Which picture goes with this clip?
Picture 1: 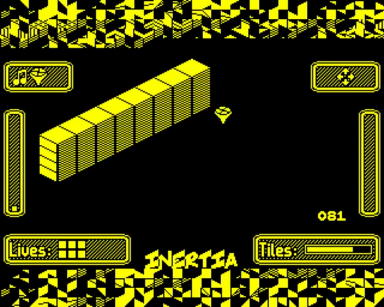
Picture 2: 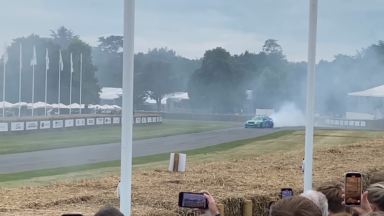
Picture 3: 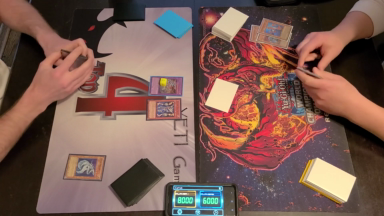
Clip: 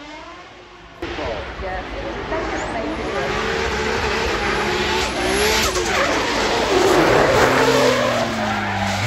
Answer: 2